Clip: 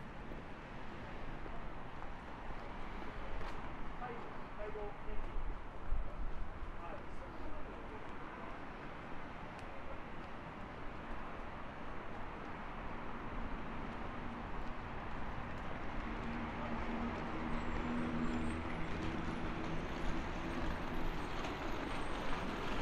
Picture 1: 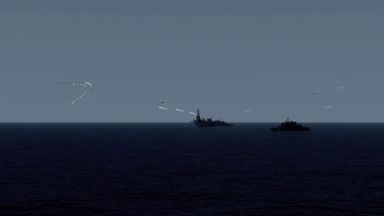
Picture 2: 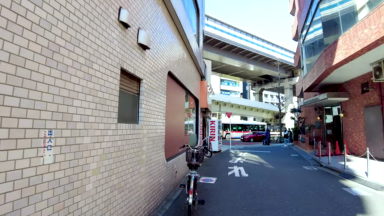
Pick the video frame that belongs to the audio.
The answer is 2